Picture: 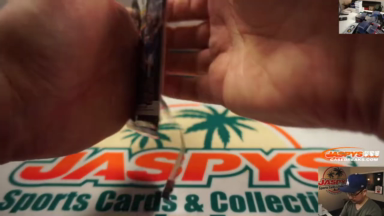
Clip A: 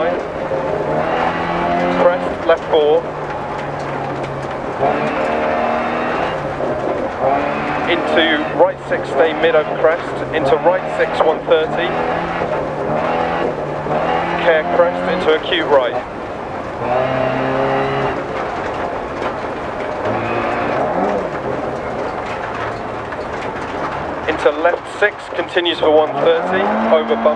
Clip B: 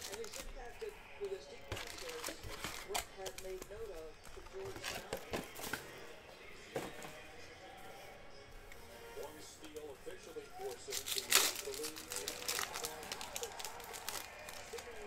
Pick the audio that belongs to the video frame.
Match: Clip B